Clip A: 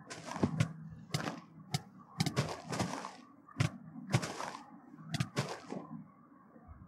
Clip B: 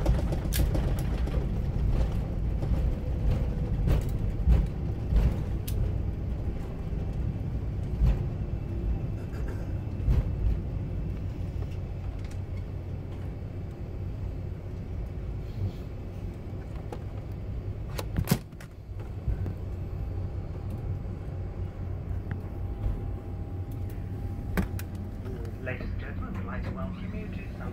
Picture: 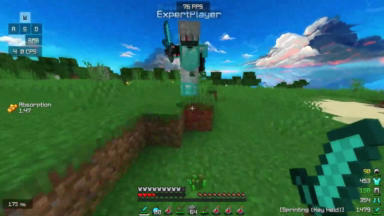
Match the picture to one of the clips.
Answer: A